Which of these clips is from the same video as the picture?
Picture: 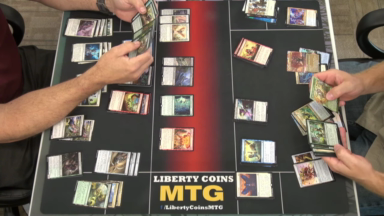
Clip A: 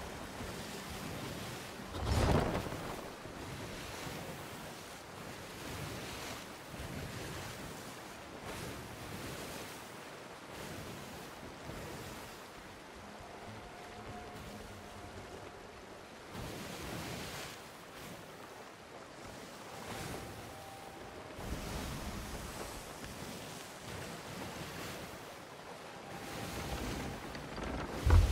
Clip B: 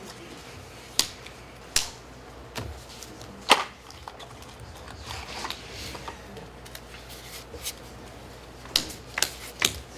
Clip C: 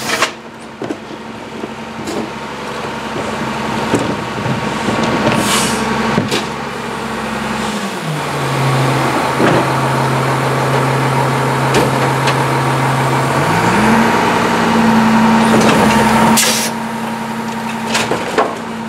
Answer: B